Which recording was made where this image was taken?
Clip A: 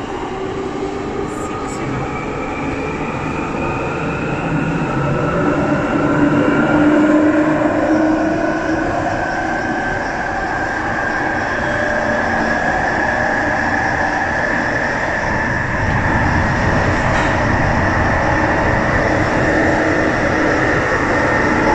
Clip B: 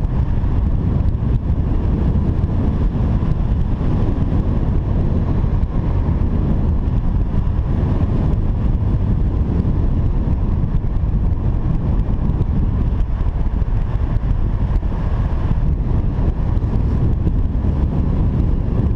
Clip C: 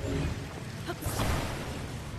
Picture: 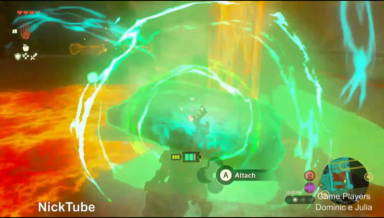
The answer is C